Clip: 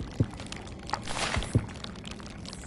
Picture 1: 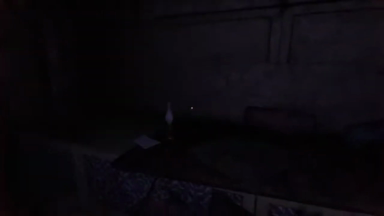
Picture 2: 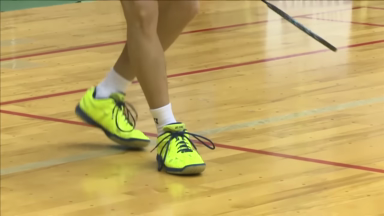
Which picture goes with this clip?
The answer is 1